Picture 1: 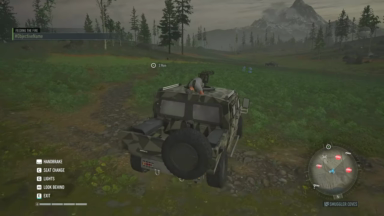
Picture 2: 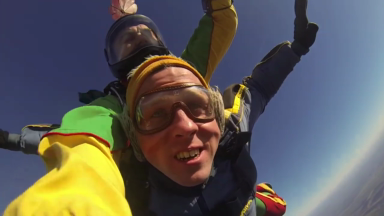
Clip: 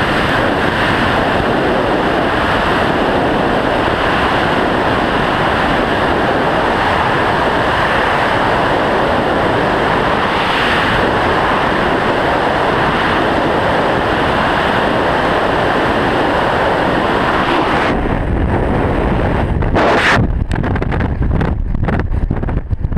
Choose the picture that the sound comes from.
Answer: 2